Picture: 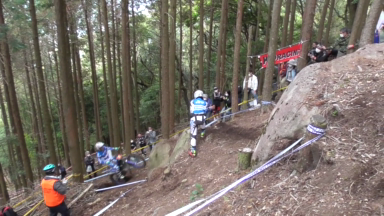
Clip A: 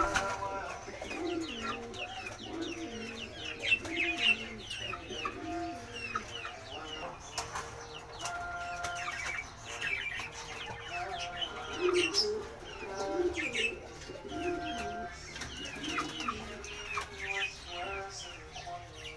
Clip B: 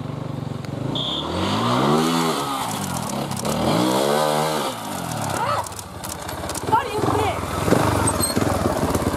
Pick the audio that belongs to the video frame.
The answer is B